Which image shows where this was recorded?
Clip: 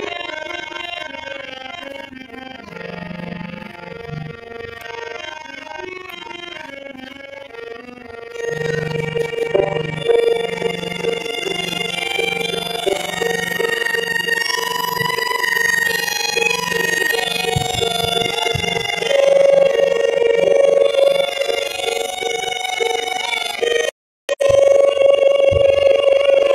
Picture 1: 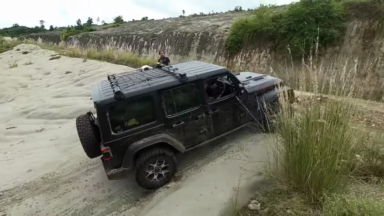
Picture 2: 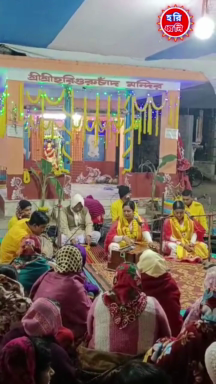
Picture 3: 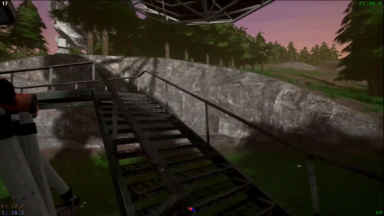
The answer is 2